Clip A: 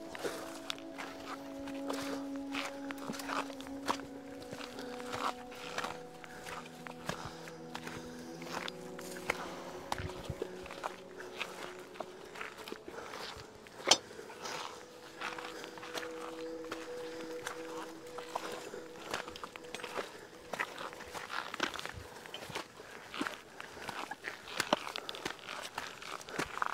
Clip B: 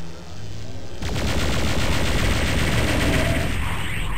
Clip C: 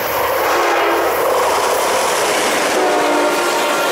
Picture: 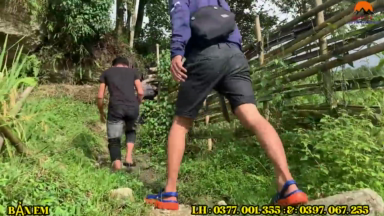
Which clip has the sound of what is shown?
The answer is A